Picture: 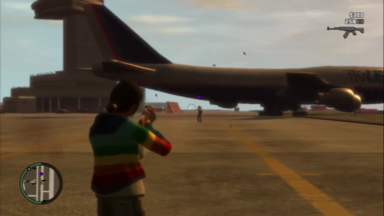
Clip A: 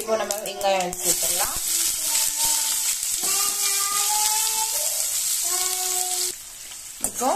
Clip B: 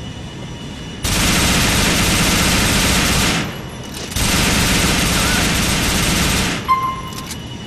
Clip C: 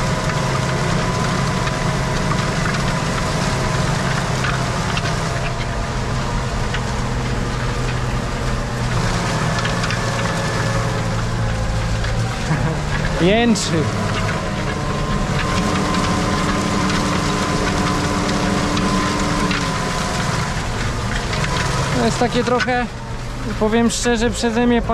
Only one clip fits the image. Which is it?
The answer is B